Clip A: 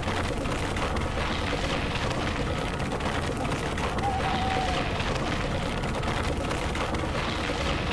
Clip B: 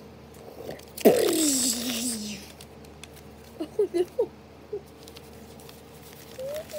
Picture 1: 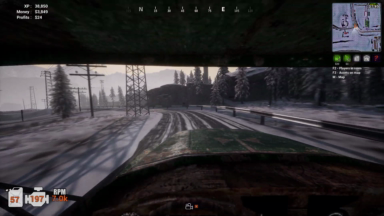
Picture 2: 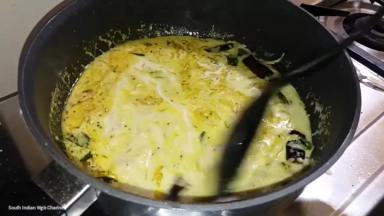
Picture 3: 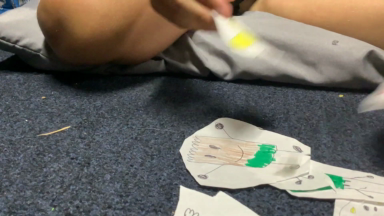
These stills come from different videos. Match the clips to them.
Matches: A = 1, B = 3